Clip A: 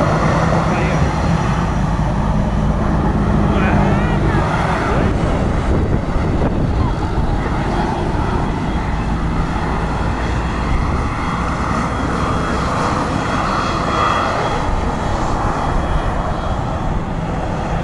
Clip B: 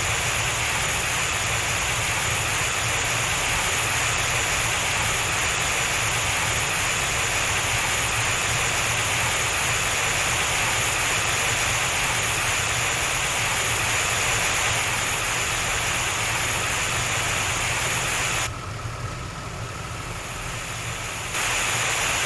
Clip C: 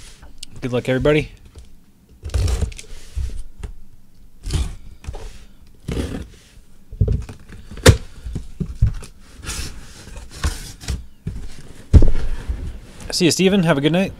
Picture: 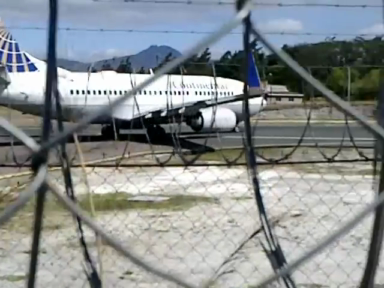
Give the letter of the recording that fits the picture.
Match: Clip A